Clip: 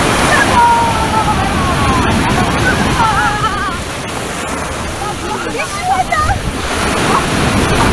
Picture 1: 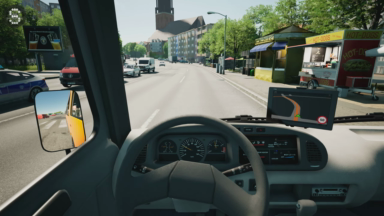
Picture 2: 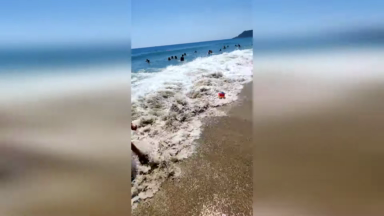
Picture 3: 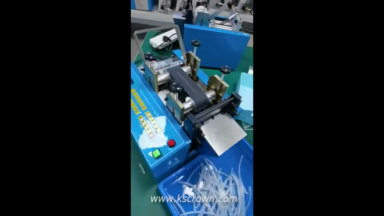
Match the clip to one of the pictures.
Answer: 2